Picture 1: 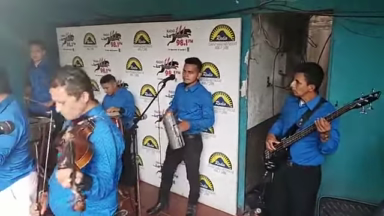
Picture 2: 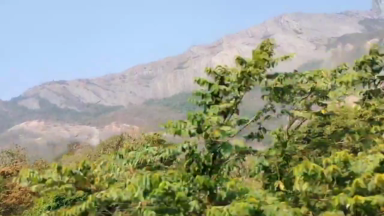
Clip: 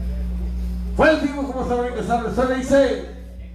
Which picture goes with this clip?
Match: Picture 1